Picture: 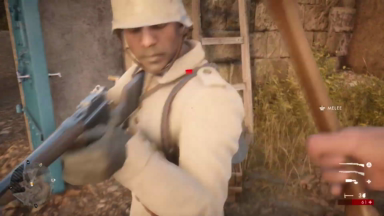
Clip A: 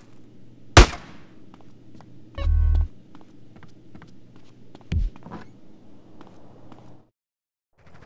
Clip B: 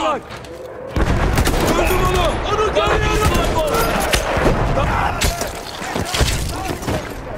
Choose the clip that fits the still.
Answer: B